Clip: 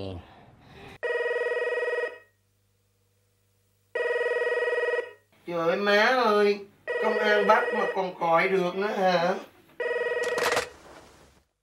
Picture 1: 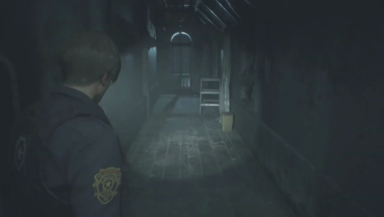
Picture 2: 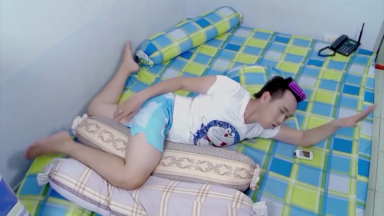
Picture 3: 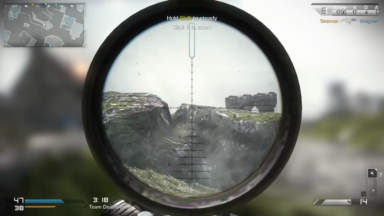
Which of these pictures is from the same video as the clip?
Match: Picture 2